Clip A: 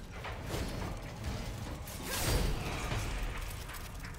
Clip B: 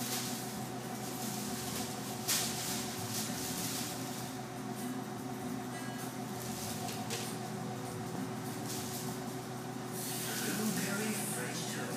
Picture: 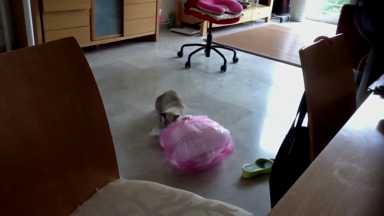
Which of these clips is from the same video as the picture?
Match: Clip B